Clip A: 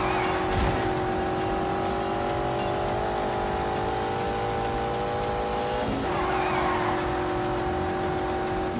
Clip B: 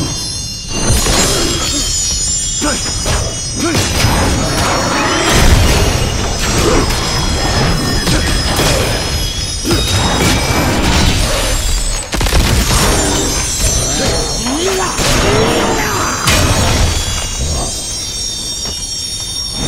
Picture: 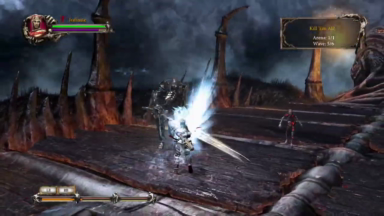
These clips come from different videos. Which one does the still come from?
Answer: B